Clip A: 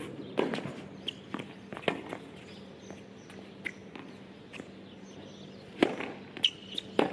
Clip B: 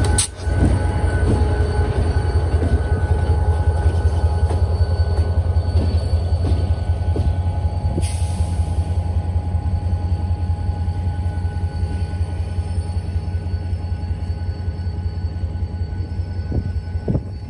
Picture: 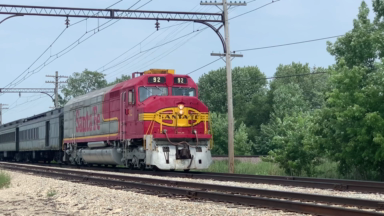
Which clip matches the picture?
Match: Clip B